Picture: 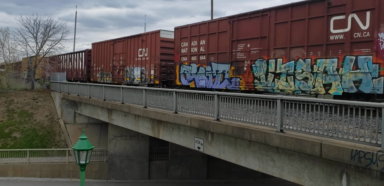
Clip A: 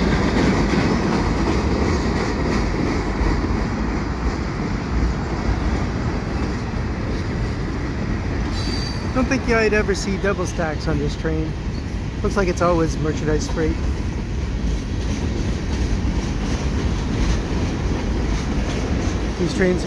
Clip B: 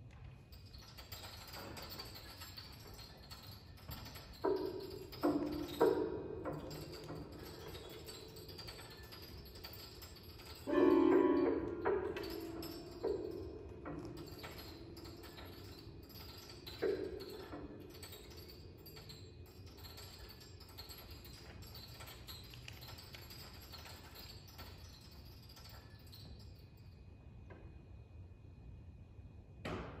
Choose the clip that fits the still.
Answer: A